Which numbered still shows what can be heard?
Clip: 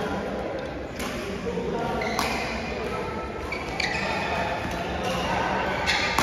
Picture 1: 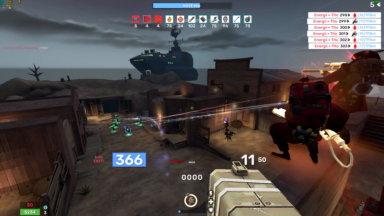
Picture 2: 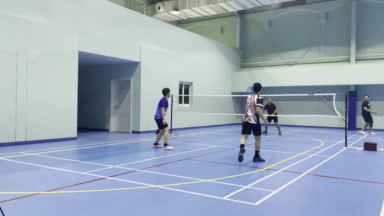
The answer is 2